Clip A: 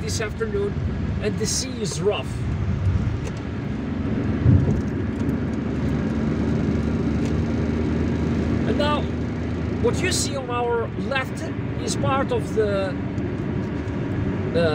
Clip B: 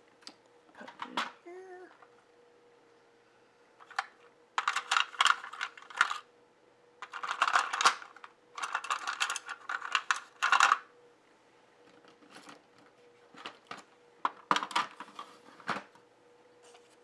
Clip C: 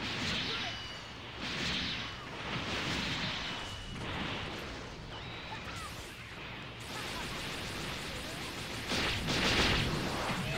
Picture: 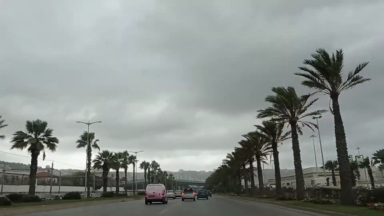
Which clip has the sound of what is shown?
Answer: A